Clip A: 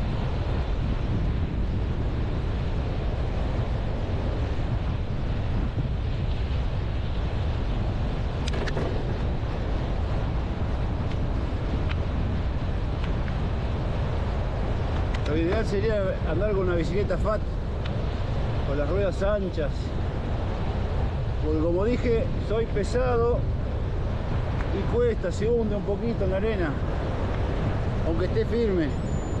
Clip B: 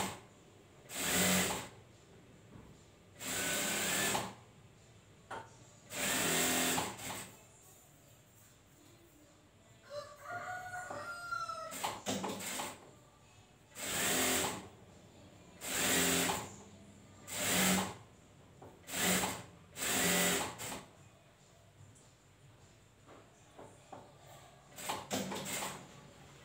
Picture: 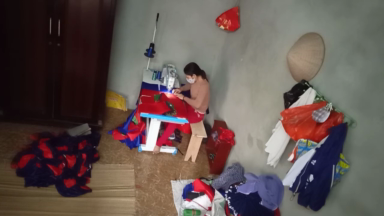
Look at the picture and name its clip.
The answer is B